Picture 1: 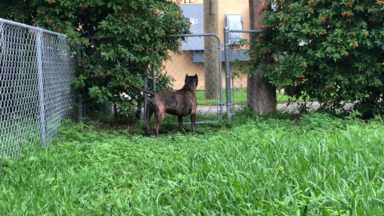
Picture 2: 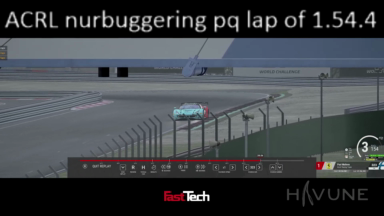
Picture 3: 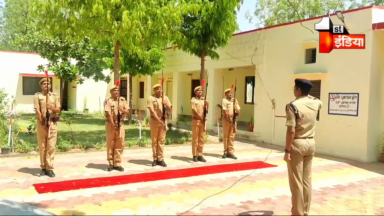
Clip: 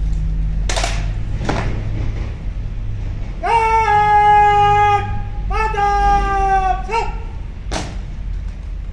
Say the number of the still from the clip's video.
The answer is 3